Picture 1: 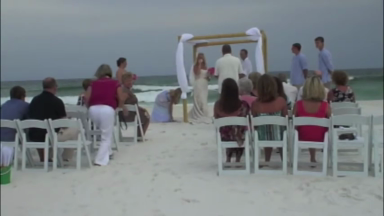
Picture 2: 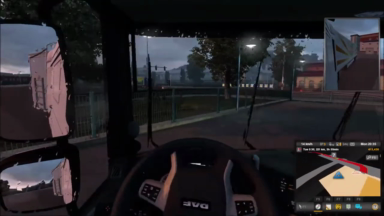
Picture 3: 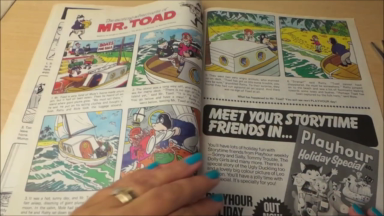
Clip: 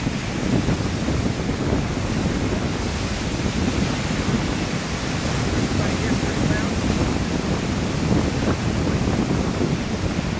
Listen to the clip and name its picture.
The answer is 1